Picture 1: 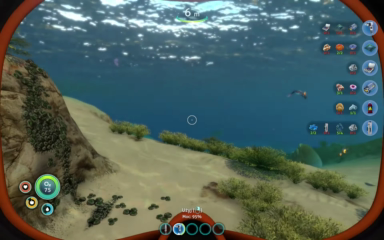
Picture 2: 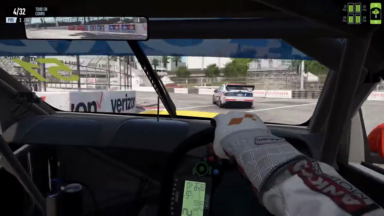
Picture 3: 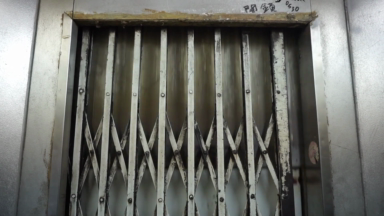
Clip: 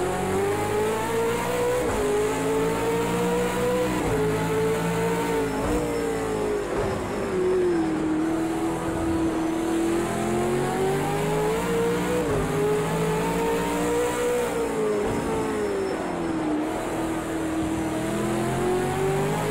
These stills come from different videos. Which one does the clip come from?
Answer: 2